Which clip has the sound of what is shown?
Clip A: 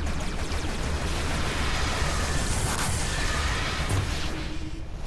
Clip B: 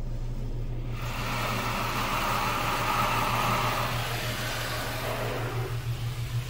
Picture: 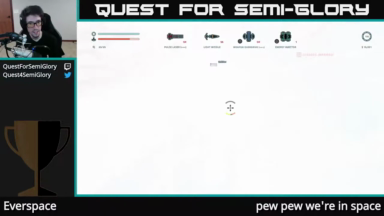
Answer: A